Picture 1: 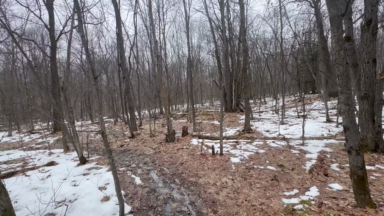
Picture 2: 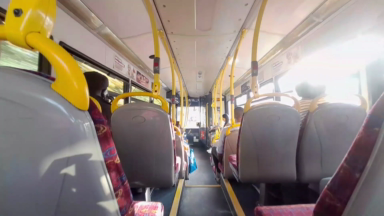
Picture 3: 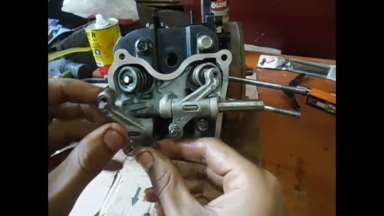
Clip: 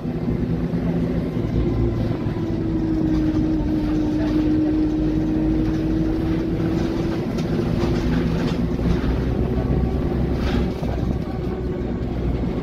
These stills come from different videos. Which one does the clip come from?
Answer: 2